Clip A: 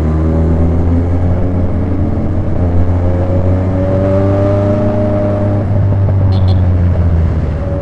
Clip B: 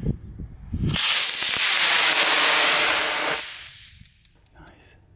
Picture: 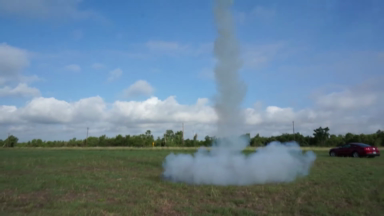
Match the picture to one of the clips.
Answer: B